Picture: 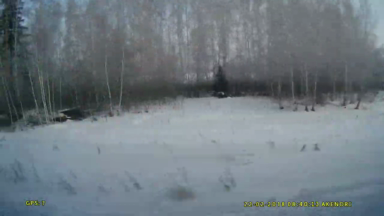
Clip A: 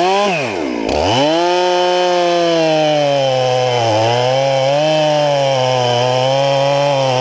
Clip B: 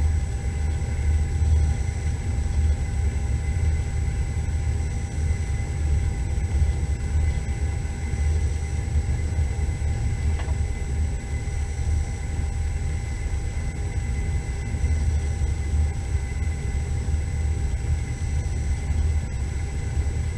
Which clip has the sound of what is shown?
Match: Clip B